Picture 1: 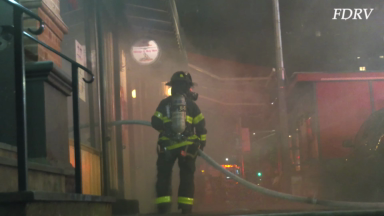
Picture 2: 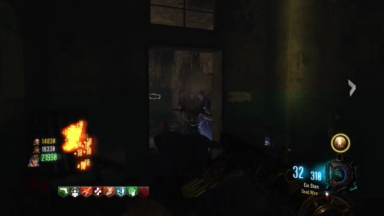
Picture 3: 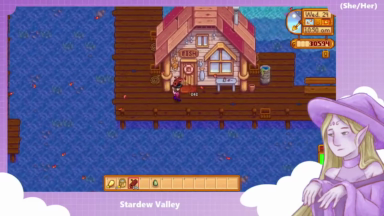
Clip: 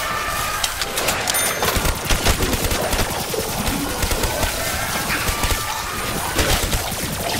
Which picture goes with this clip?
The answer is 2